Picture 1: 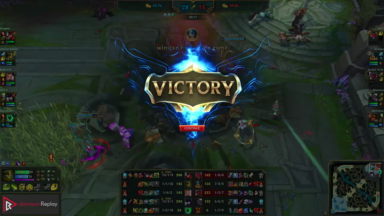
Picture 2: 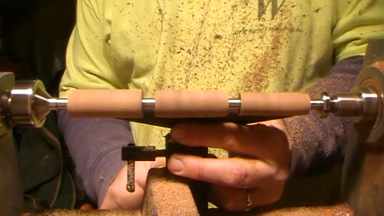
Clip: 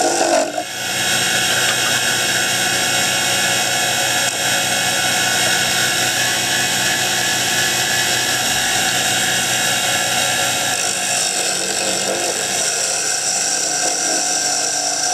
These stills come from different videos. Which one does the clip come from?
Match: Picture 2